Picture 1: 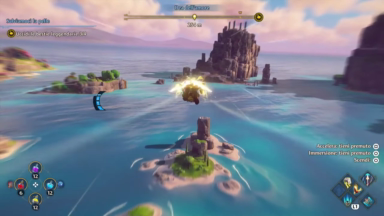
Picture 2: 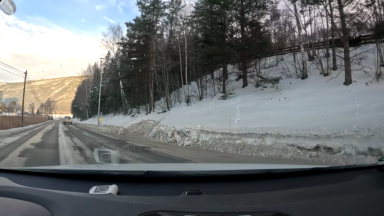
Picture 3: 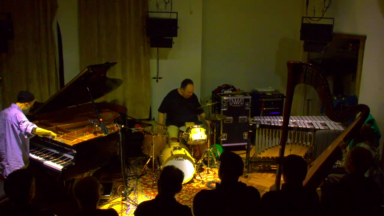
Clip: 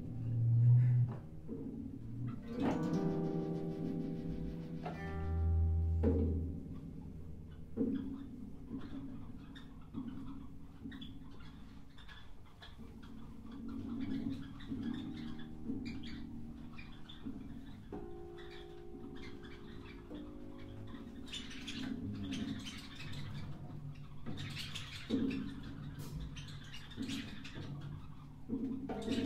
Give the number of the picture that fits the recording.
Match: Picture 3